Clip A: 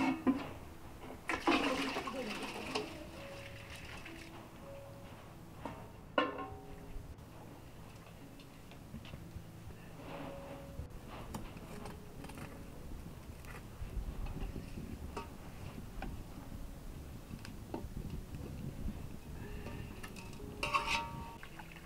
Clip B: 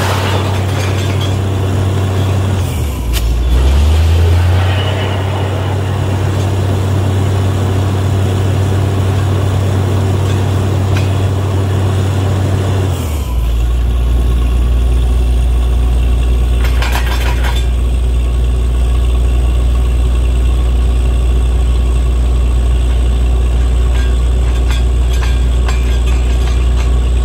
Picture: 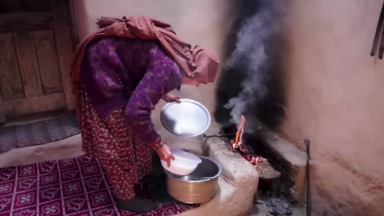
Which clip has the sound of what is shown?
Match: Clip A